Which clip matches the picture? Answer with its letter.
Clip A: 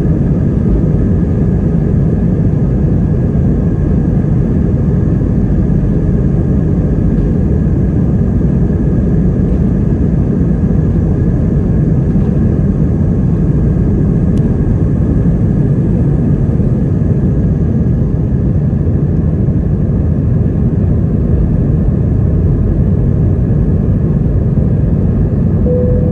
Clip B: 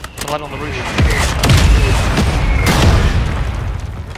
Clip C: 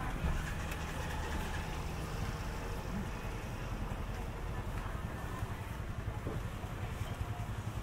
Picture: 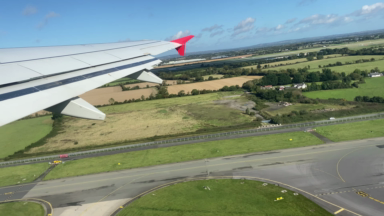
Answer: A